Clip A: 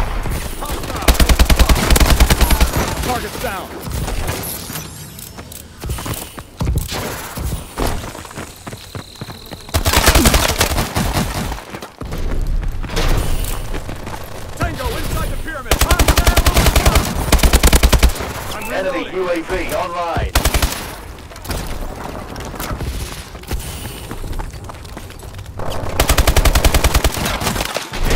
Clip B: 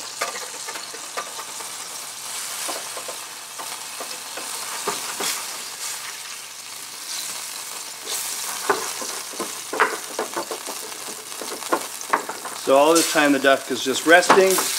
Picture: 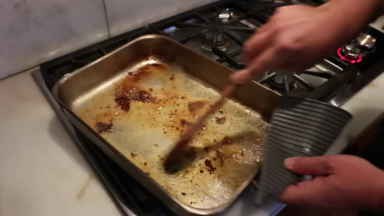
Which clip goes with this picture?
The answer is B